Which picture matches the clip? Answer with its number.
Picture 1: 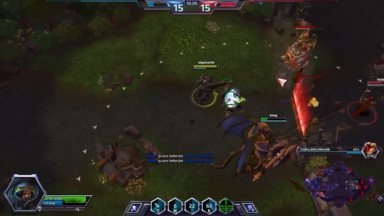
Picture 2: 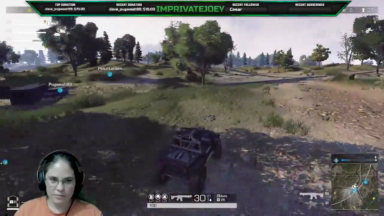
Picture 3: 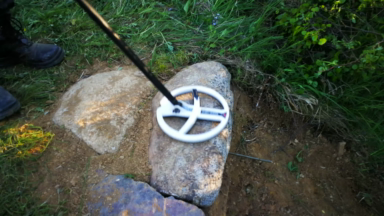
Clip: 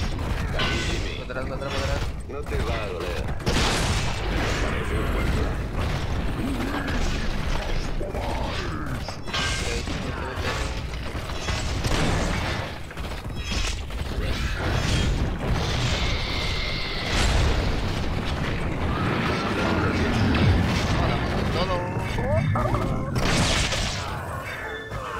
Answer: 1